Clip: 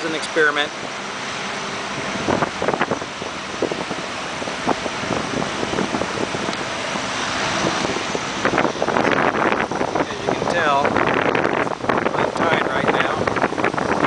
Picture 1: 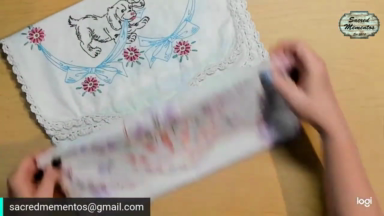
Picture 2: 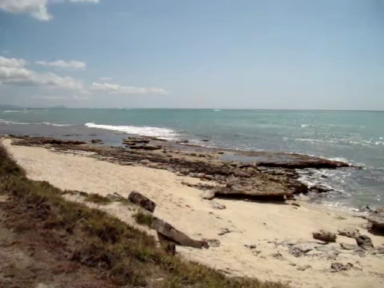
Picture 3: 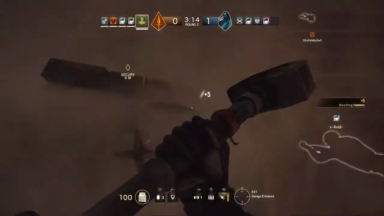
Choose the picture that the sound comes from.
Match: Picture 2